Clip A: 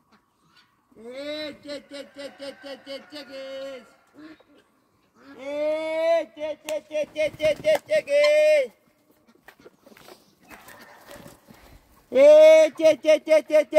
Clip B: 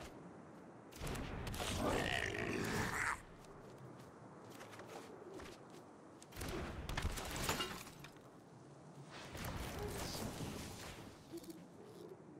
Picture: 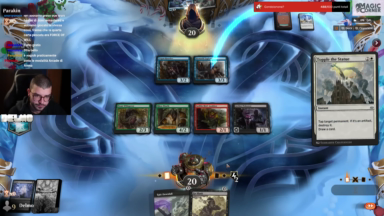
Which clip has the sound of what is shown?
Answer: B